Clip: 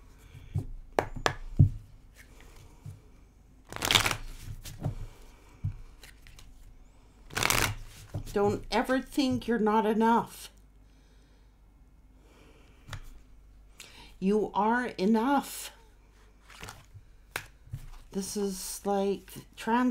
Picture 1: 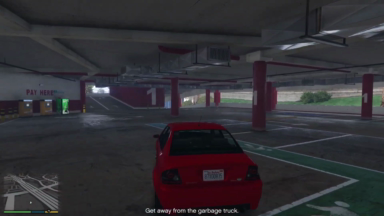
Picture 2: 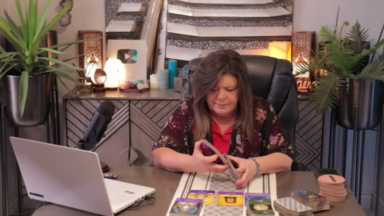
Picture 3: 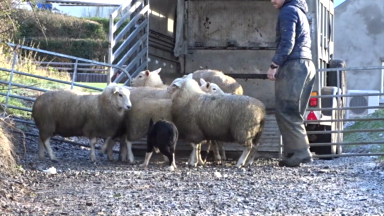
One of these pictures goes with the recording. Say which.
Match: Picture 2